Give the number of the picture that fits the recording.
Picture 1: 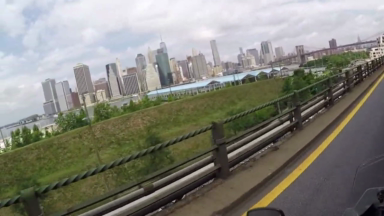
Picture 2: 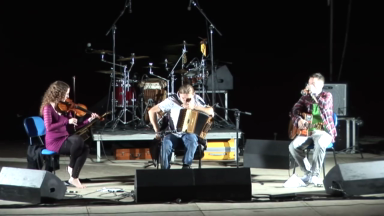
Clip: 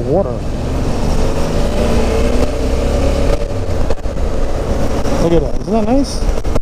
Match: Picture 1